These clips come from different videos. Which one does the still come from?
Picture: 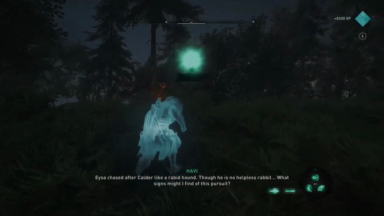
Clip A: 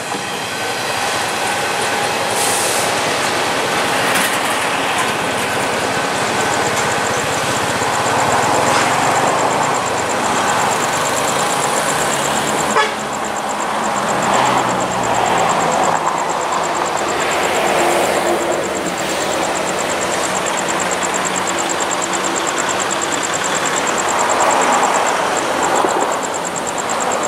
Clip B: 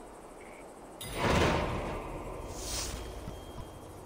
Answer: B